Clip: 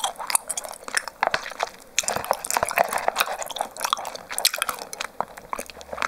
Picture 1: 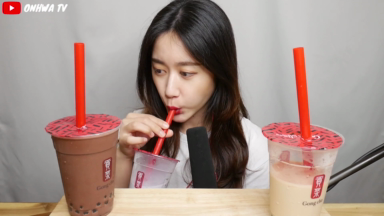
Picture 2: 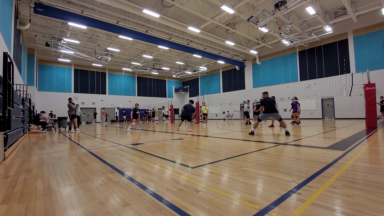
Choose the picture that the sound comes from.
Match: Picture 1